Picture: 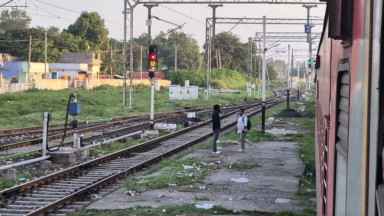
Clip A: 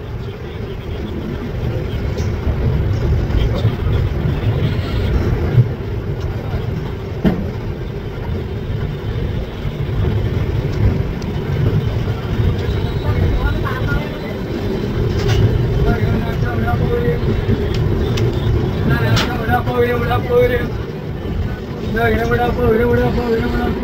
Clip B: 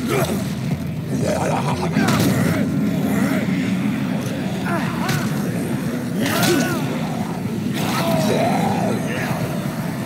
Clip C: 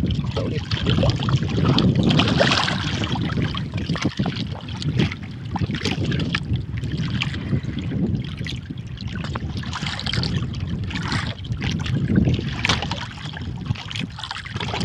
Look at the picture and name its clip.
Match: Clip A